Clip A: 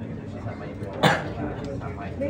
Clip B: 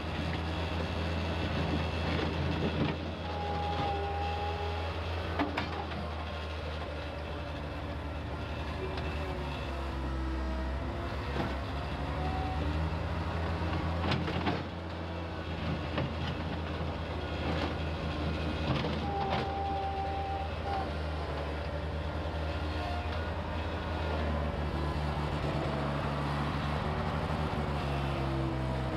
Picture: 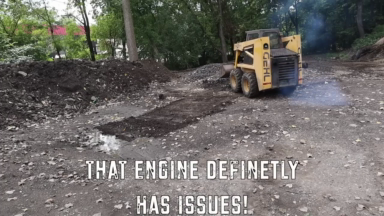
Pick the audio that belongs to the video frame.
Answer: B